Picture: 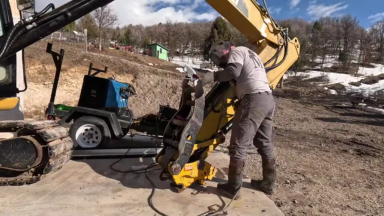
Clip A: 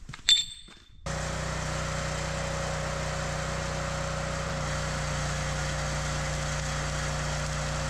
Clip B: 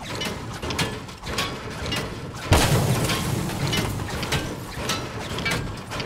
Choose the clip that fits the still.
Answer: A